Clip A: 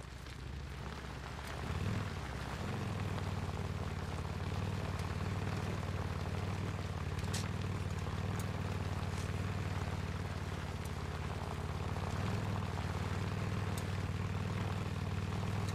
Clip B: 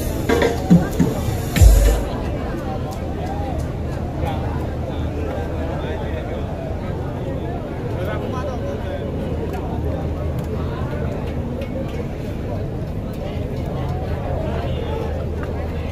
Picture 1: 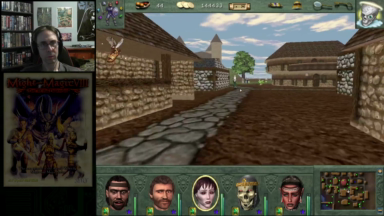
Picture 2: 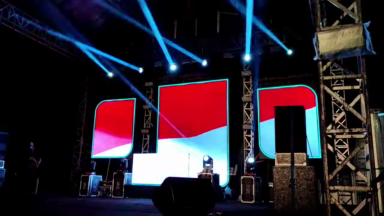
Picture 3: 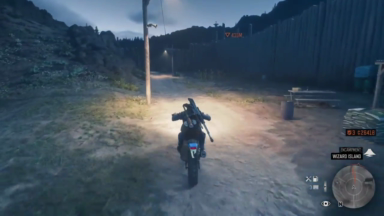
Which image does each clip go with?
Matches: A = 3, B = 2